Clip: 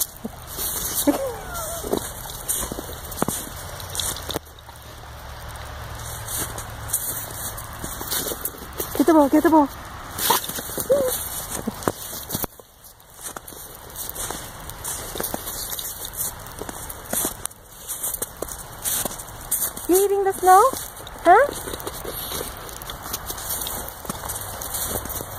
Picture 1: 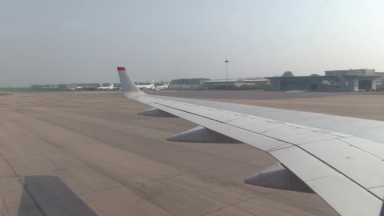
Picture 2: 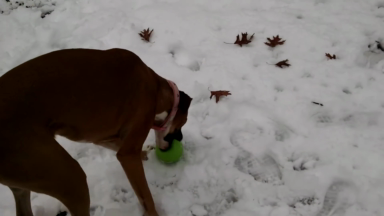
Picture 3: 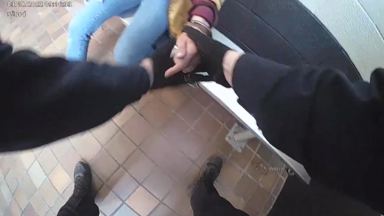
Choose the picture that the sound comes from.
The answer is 2